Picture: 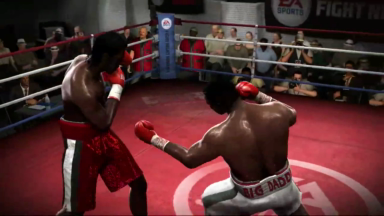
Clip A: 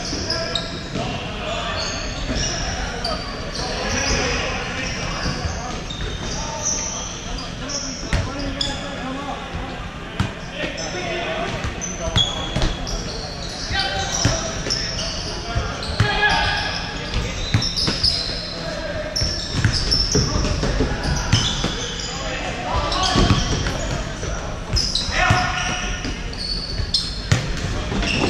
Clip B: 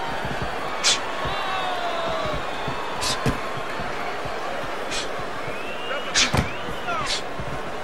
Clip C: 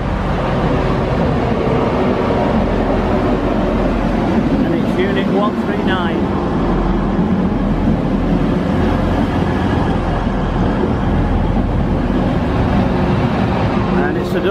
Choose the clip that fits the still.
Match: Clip B